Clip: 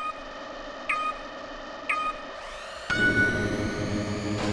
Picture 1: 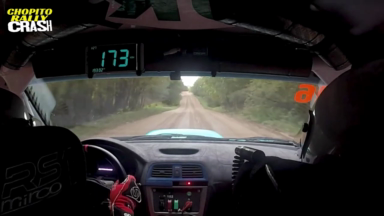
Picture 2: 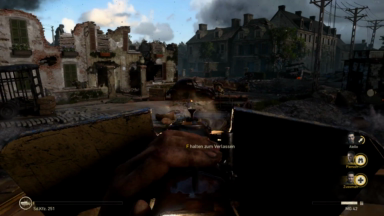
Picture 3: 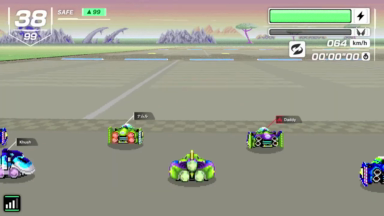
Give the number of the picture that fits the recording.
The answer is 3